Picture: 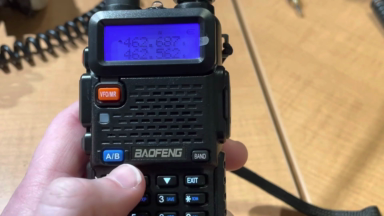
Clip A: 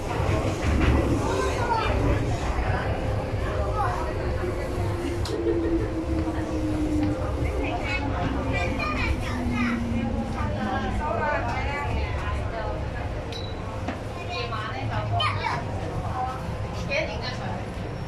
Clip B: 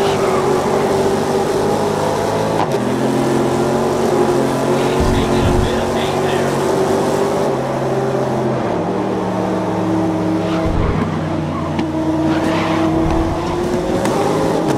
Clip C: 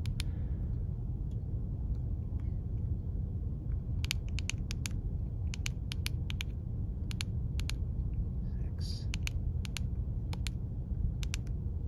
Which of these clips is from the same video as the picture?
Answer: C